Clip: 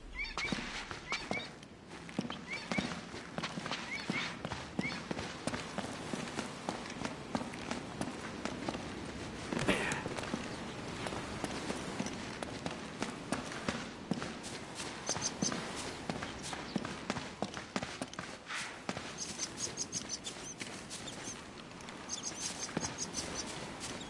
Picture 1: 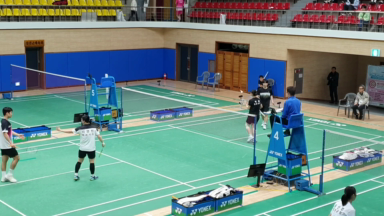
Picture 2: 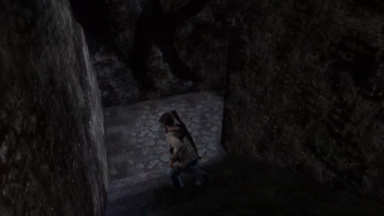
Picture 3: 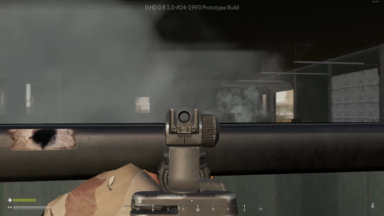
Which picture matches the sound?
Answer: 2